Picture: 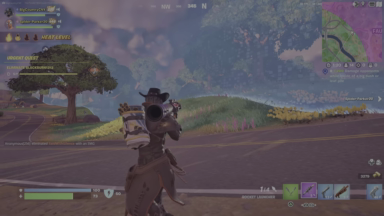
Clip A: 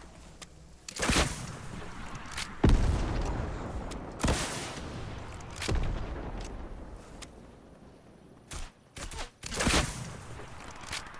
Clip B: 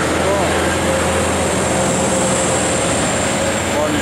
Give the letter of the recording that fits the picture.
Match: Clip A